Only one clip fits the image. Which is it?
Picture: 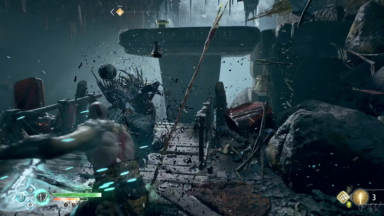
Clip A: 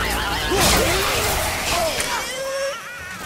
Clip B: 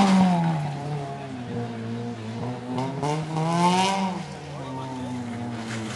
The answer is A